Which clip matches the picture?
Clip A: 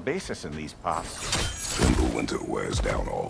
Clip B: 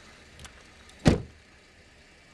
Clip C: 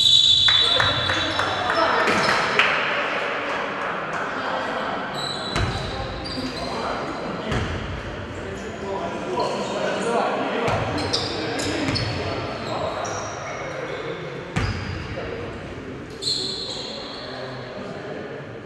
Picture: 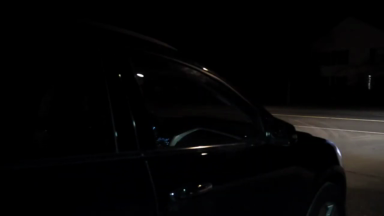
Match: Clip B